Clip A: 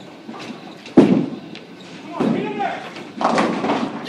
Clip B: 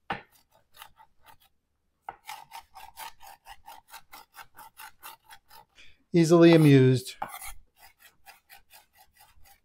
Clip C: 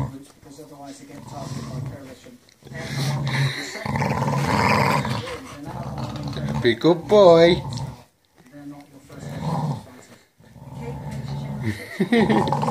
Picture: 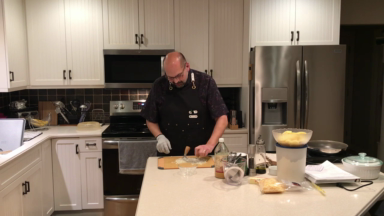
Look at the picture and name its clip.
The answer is B